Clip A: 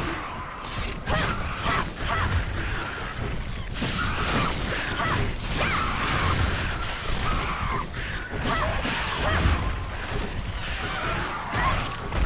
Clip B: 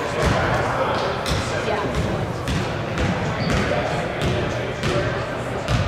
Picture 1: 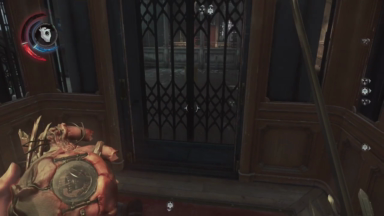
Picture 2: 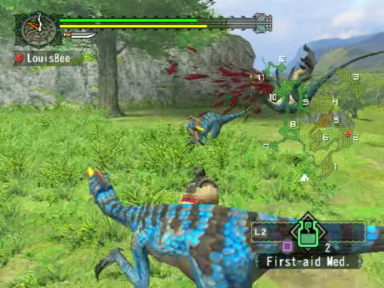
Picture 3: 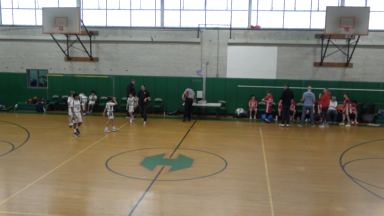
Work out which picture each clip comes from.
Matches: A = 2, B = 3